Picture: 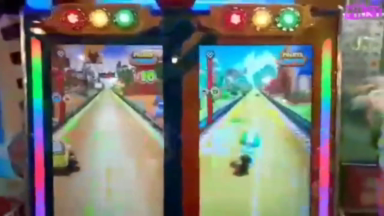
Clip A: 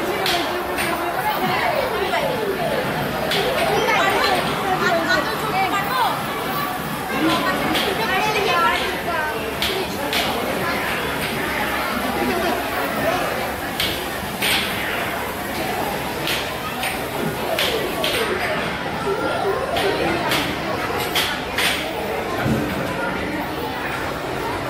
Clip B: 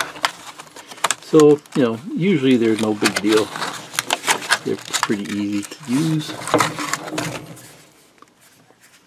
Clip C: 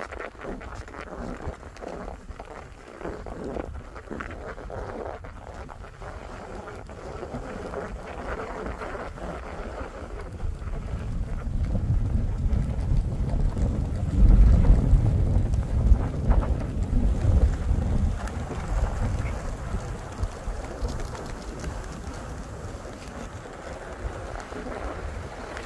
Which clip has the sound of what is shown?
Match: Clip A